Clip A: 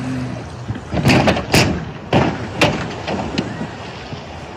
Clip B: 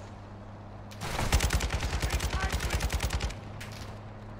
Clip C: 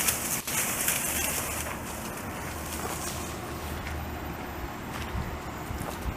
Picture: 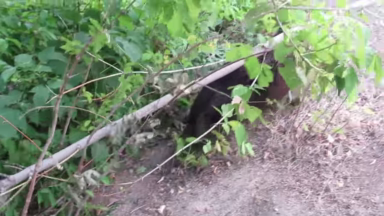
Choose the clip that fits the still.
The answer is C